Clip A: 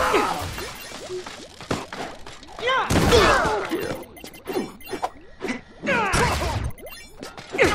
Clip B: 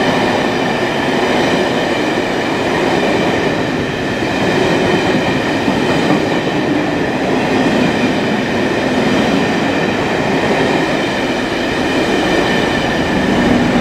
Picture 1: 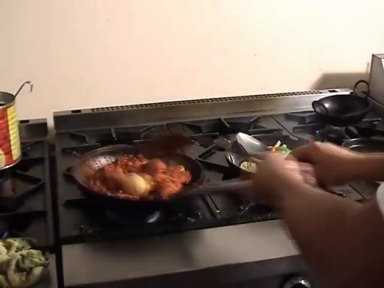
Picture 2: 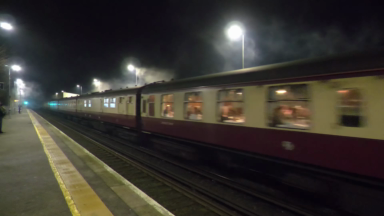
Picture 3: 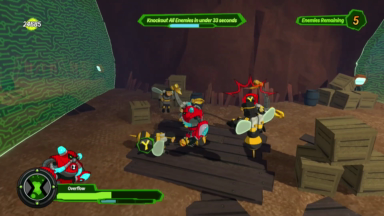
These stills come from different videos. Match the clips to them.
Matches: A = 3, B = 2